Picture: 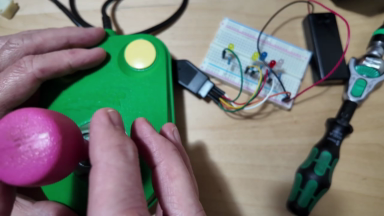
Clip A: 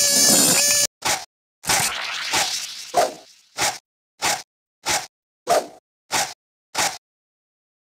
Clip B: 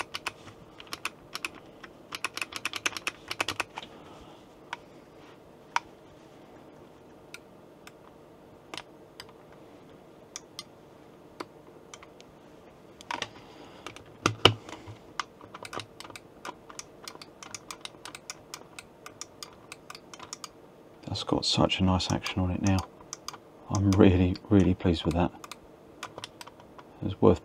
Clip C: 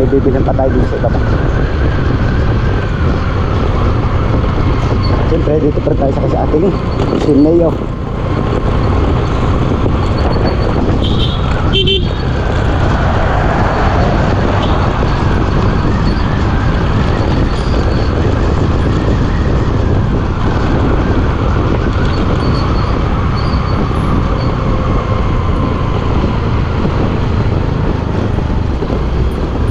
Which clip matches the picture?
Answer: B